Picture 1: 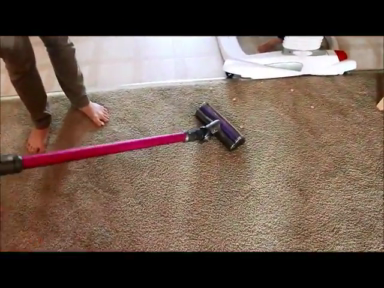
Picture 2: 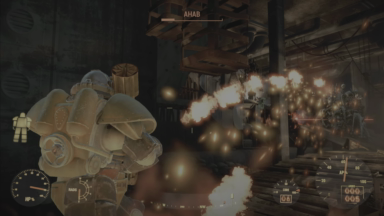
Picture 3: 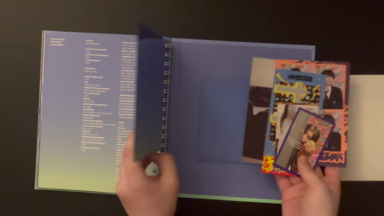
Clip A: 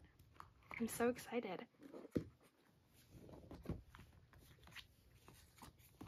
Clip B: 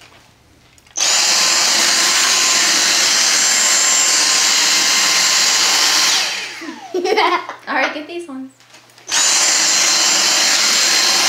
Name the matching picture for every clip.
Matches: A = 3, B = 1